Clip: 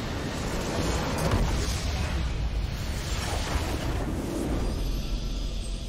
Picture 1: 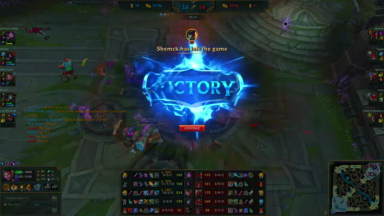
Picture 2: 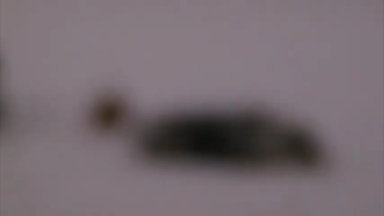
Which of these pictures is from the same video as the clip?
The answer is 1